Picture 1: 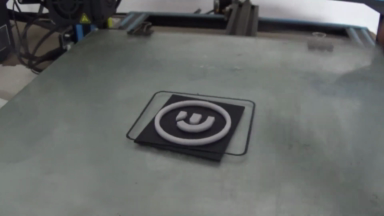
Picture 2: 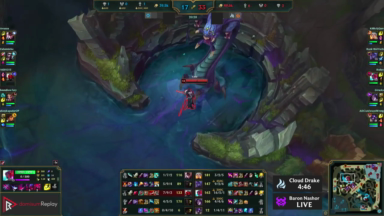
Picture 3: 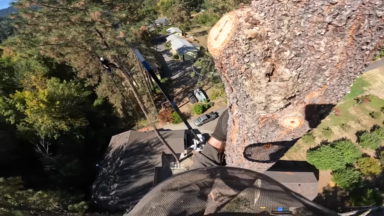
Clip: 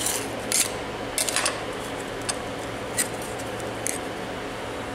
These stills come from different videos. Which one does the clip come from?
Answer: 1